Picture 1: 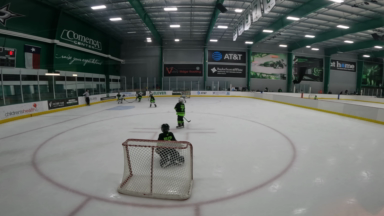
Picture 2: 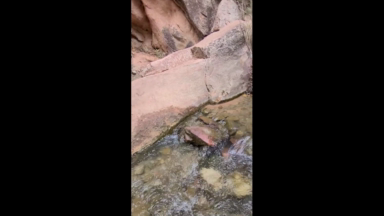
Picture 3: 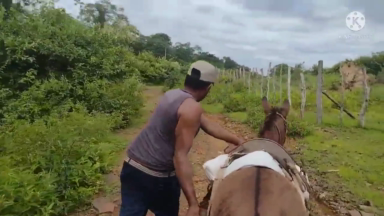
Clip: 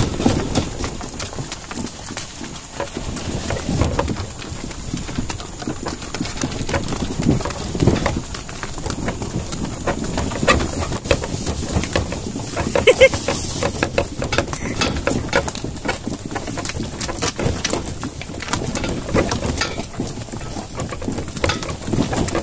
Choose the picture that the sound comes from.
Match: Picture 3